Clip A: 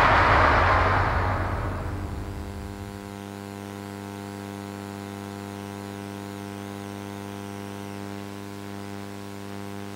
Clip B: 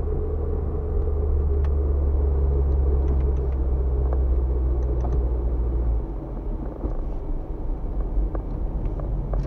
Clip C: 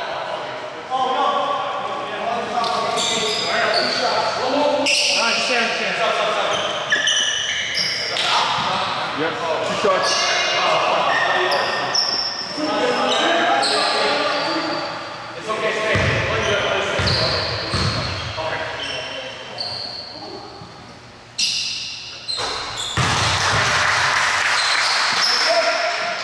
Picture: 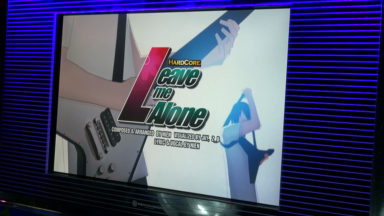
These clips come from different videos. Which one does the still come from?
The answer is A